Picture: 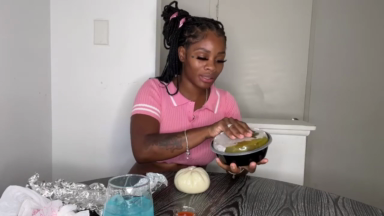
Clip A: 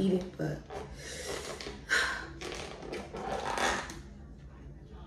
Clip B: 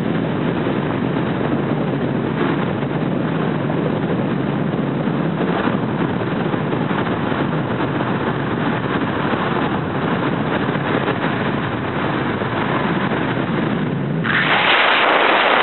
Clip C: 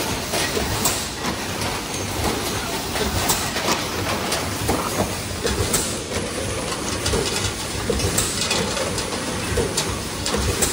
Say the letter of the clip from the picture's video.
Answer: A